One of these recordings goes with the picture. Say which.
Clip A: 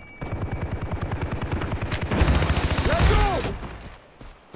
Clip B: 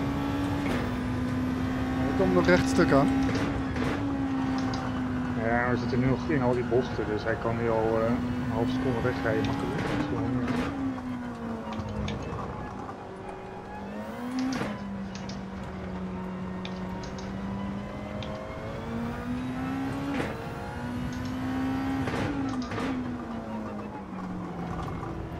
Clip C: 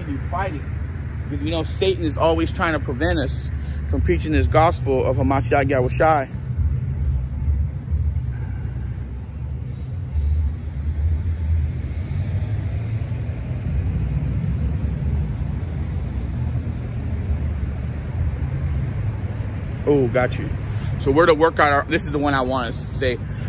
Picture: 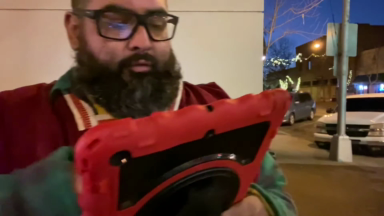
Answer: C